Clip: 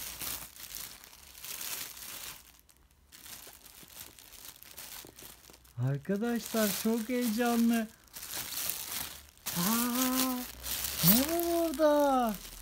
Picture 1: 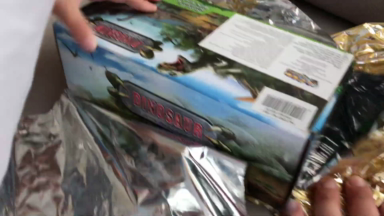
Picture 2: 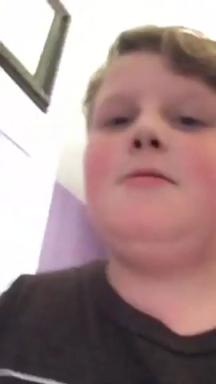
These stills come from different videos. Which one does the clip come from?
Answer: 1